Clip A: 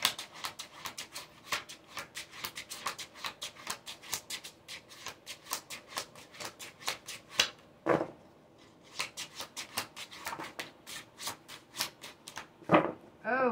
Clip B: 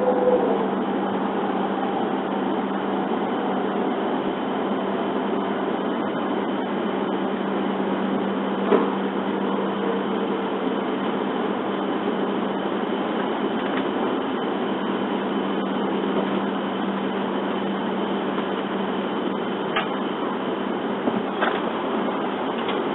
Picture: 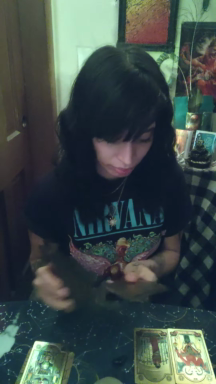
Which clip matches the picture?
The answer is A